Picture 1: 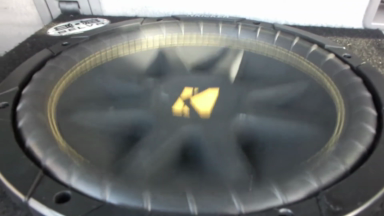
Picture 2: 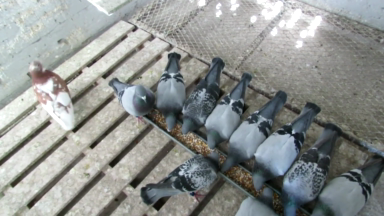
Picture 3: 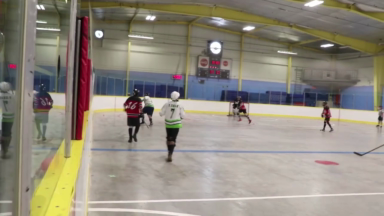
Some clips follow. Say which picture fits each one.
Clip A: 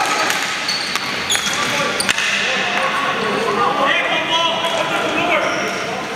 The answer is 3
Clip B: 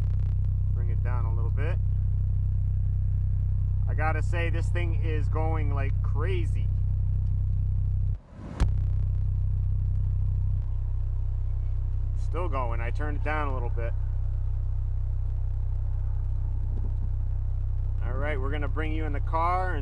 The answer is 1